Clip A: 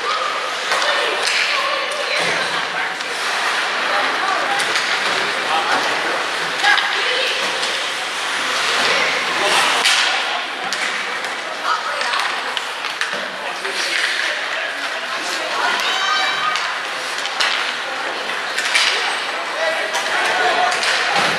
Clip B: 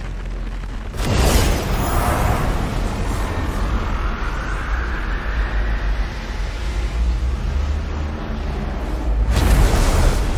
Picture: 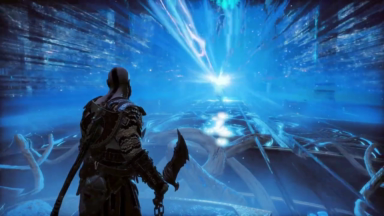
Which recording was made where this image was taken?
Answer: B